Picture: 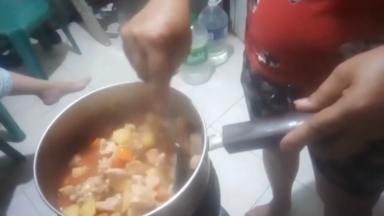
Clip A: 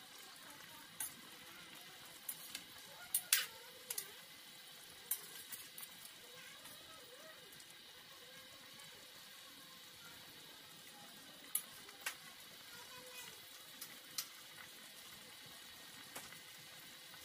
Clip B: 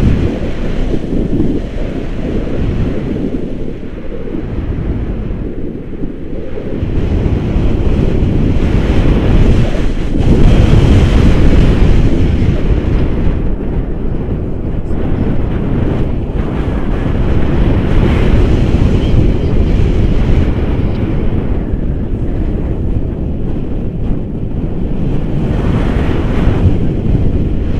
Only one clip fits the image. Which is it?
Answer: A